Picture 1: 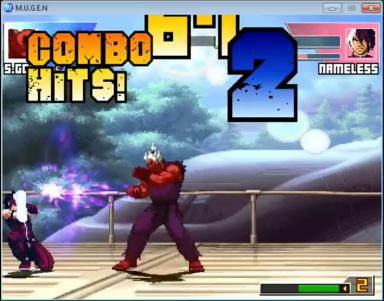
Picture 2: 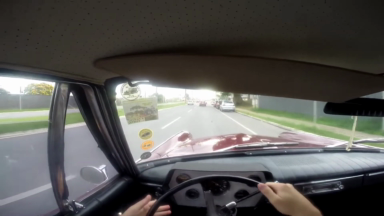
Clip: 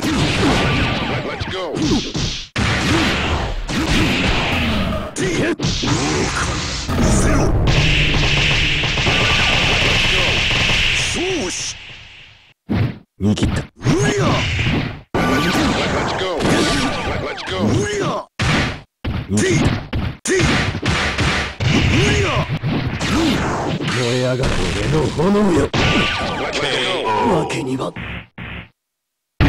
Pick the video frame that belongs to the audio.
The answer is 1